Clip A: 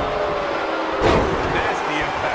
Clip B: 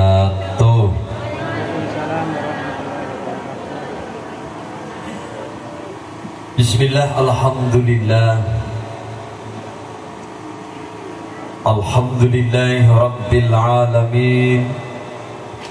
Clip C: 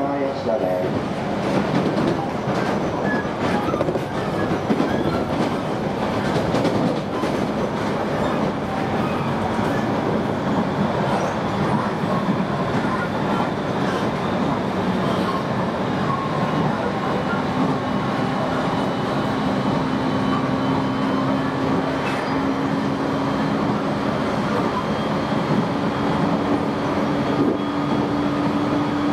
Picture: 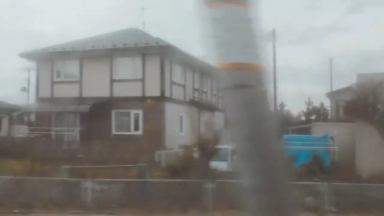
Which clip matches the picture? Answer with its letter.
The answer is C